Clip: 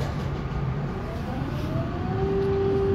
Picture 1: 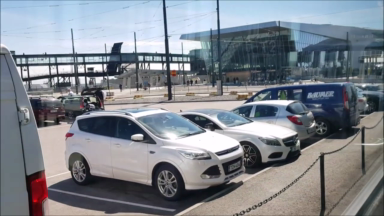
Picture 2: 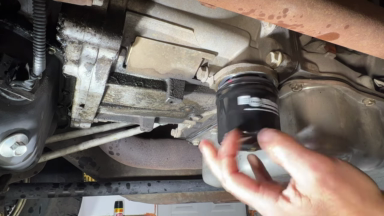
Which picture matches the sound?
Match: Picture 1